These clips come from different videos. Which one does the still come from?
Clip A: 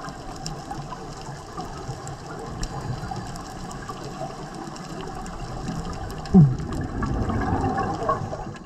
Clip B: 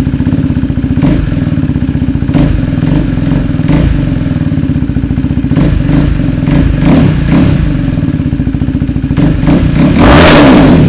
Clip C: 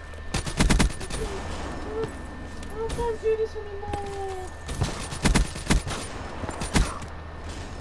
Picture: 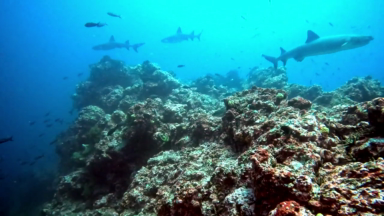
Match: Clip A